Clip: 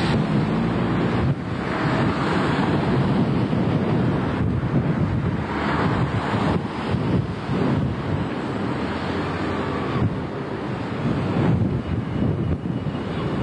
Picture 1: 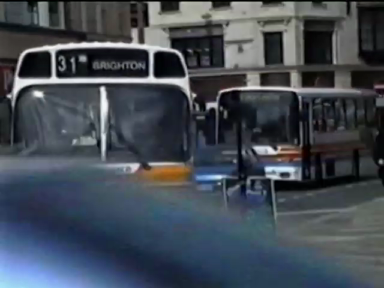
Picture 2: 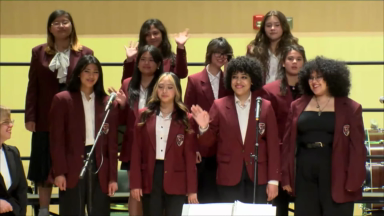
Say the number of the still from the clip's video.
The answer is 1